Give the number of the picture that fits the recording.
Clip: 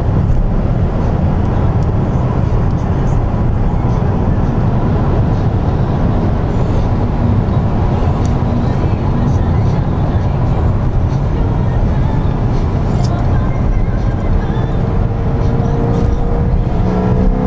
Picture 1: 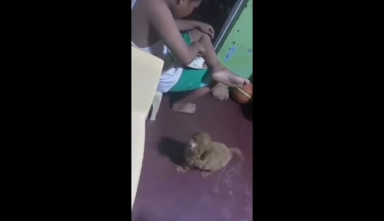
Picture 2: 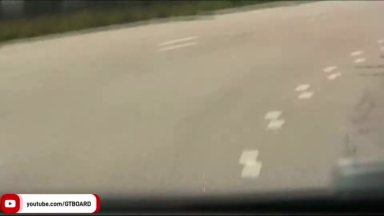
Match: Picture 2